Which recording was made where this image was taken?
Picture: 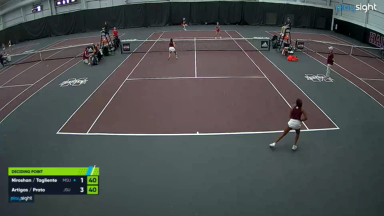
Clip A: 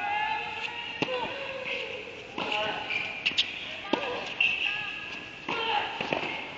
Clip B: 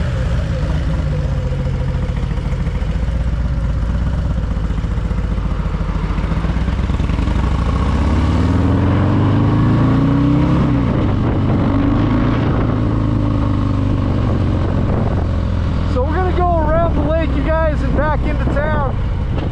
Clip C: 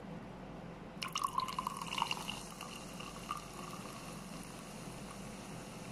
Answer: A